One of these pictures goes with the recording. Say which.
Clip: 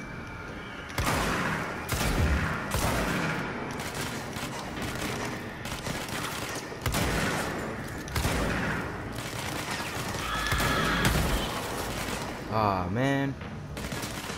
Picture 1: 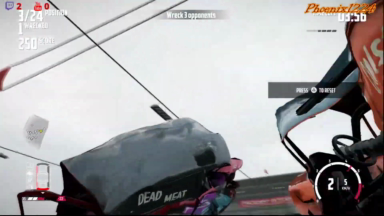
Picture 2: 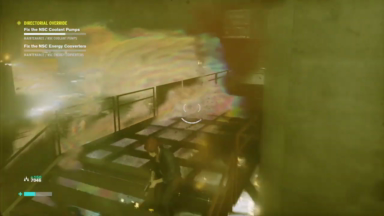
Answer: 2